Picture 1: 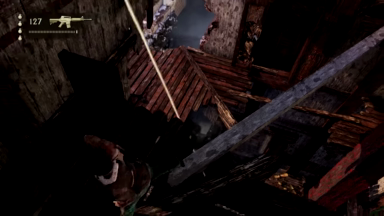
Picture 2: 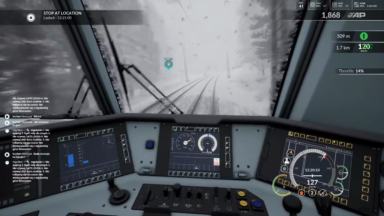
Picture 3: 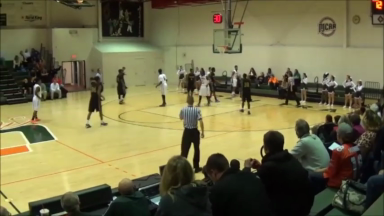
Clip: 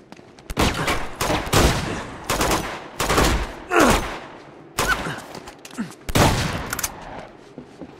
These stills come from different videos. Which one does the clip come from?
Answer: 1